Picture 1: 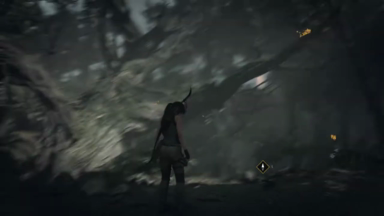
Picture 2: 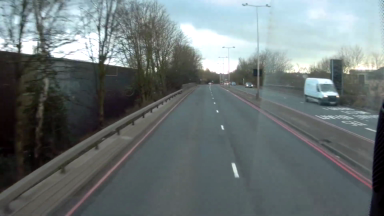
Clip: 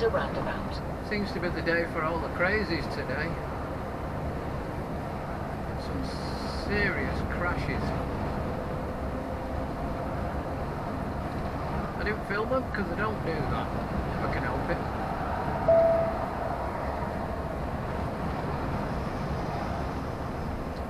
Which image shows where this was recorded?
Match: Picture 2